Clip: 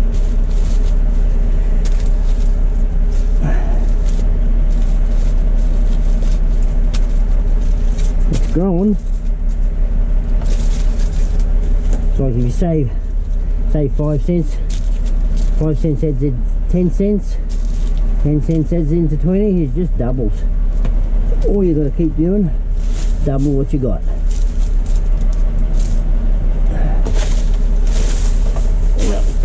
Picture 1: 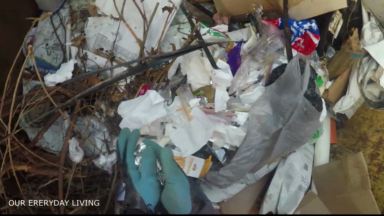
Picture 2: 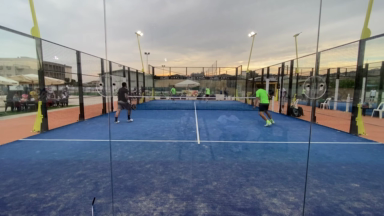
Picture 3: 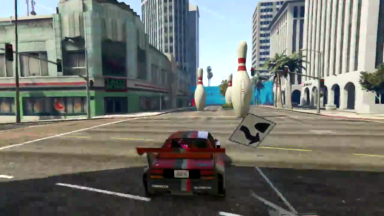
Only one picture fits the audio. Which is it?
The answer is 1